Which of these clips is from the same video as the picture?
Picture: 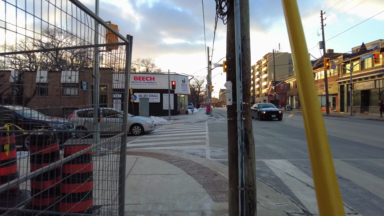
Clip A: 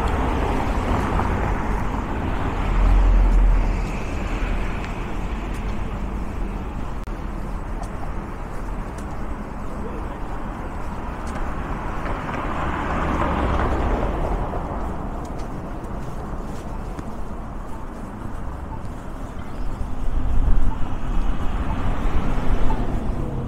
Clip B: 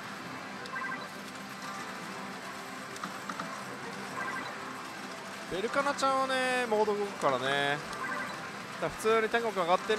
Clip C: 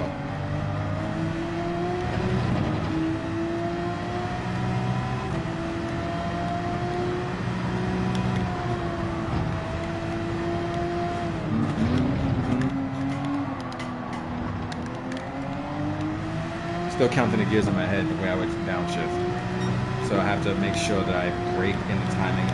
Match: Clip A